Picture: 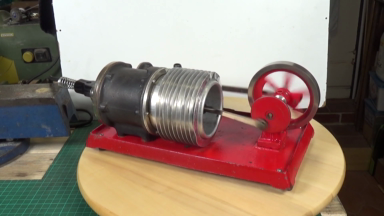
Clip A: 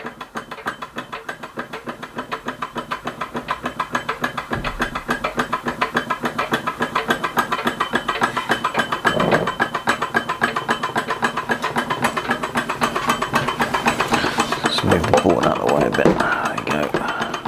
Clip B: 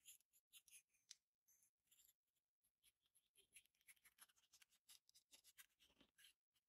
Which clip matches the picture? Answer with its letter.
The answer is A